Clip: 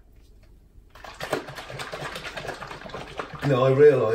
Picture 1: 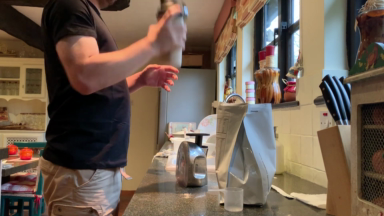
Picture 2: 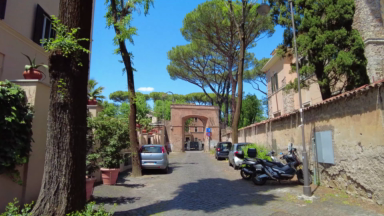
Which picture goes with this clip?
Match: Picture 1